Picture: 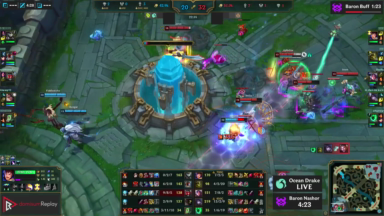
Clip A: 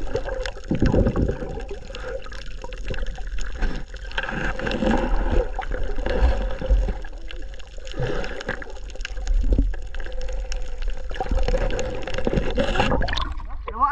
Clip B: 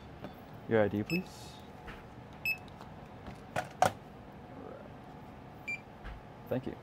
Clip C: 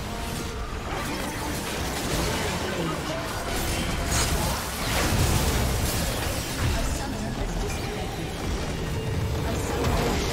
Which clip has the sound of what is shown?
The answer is C